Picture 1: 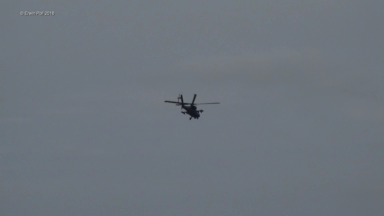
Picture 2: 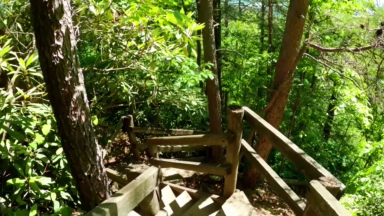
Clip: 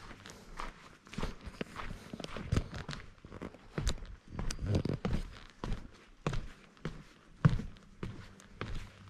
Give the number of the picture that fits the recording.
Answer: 2